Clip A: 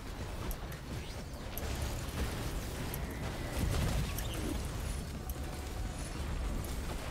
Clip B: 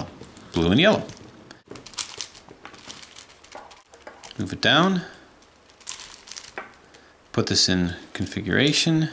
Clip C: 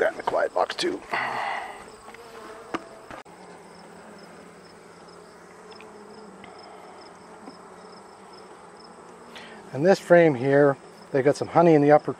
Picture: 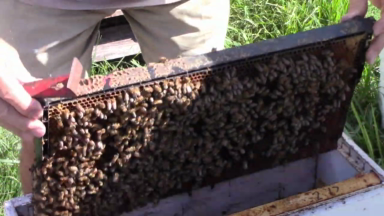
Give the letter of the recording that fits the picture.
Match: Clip C